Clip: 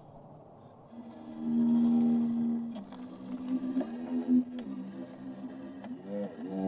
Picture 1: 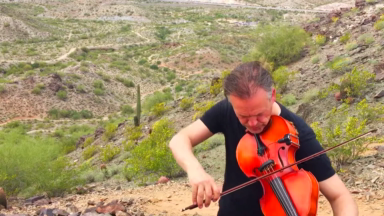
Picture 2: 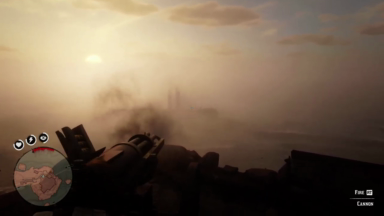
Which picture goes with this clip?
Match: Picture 1